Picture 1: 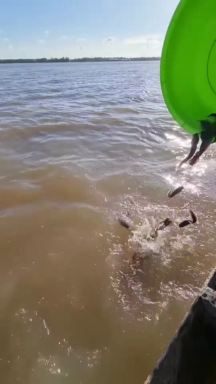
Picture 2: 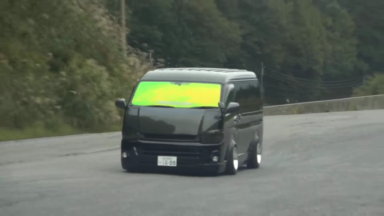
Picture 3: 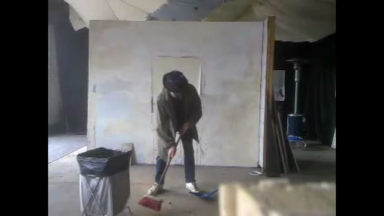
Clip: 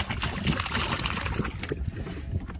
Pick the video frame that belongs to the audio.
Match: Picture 1